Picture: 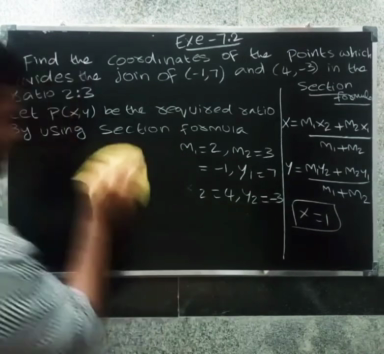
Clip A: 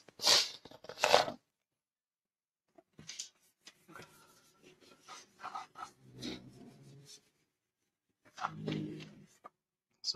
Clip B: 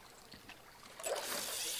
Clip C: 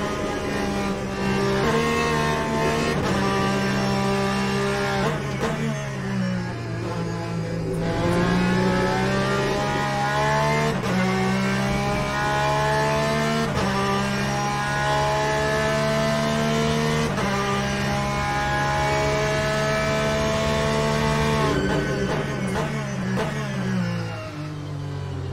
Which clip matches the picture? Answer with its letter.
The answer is A